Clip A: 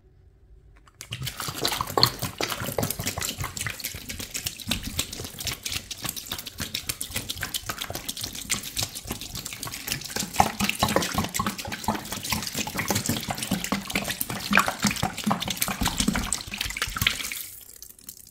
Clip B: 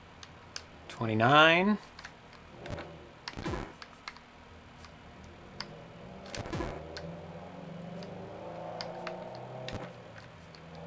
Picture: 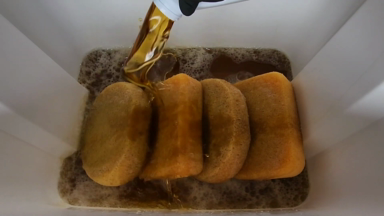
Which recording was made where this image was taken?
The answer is A